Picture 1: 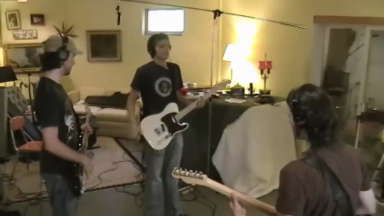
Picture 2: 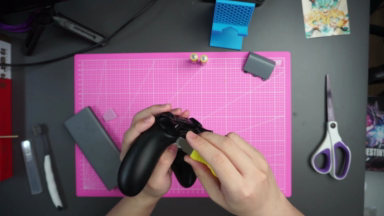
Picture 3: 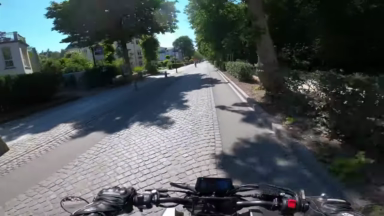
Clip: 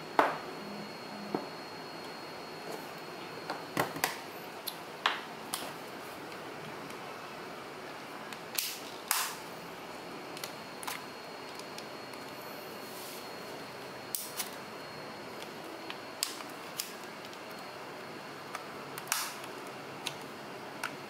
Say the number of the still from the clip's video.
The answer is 2